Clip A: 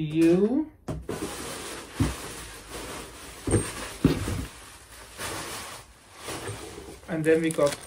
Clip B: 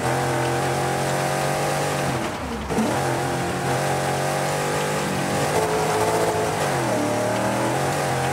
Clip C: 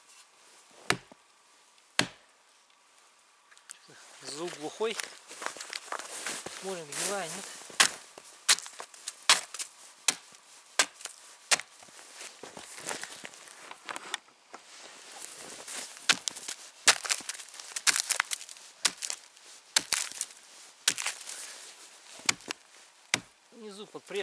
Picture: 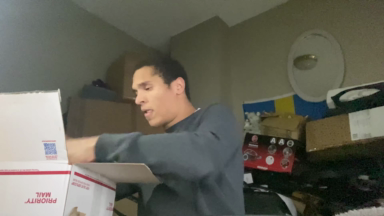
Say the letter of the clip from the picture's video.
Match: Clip A